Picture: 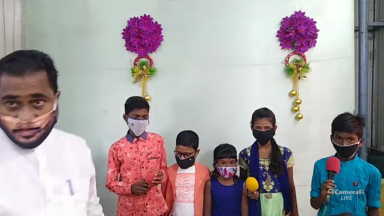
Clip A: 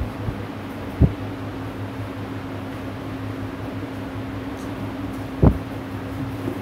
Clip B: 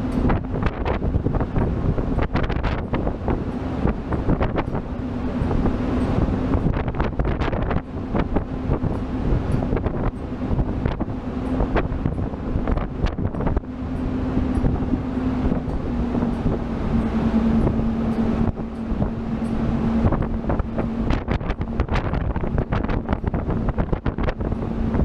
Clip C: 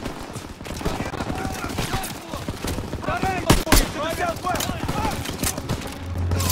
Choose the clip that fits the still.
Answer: A